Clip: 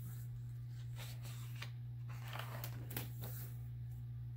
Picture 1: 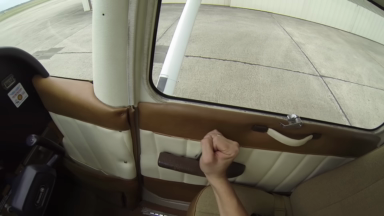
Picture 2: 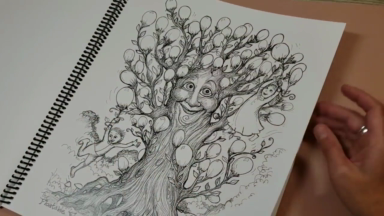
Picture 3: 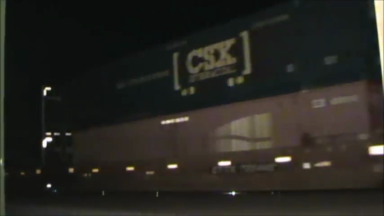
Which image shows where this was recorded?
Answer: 2